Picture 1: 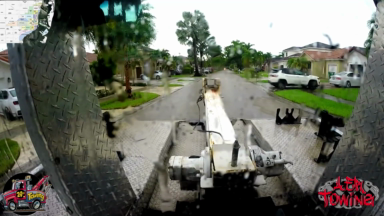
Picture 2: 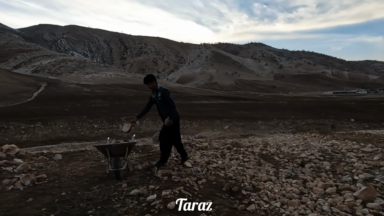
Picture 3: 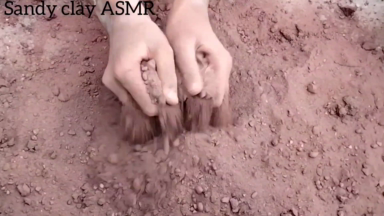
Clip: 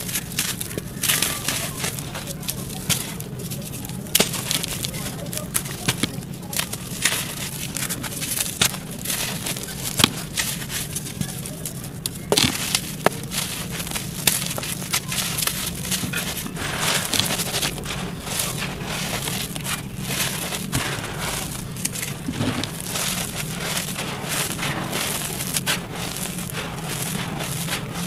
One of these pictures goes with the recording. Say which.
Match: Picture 3